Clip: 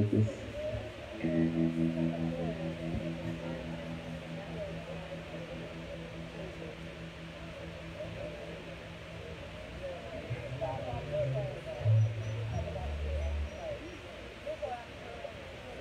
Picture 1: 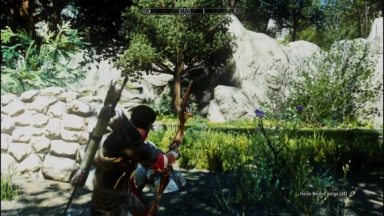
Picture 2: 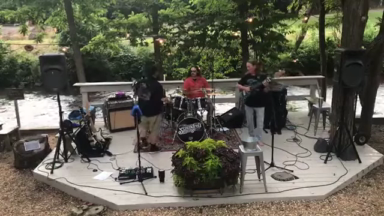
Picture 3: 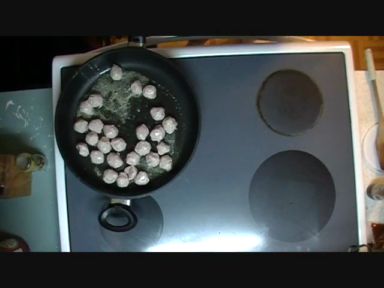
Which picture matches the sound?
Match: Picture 2